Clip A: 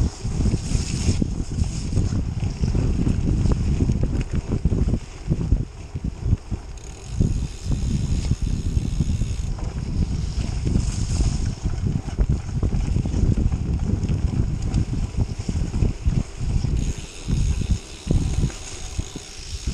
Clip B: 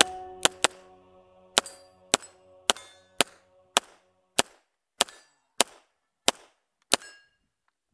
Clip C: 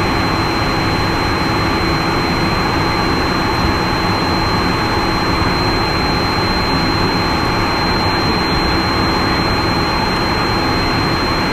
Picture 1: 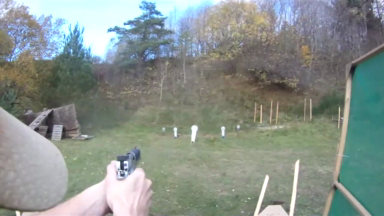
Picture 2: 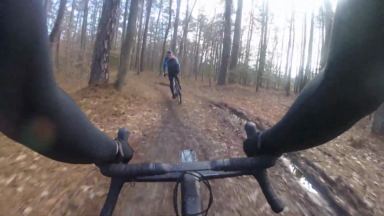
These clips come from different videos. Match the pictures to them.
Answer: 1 B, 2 A